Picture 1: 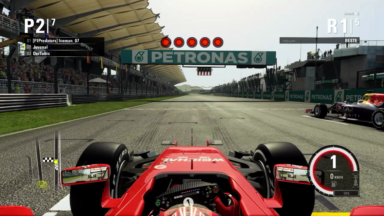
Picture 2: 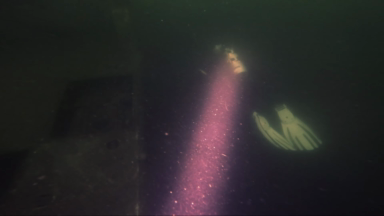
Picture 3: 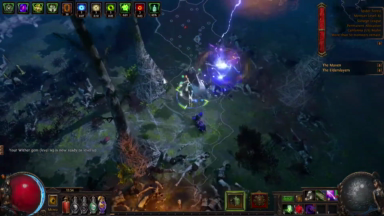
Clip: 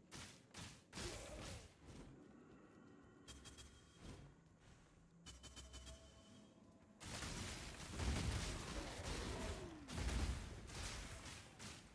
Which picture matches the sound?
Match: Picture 3